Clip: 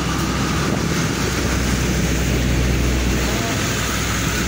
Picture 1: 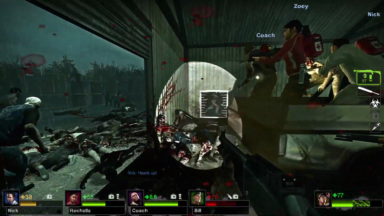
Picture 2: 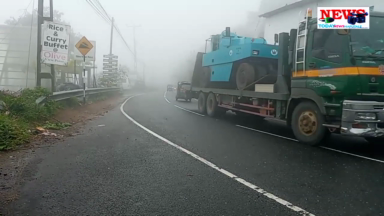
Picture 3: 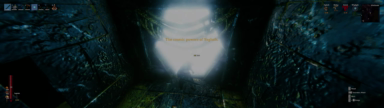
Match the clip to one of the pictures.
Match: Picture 2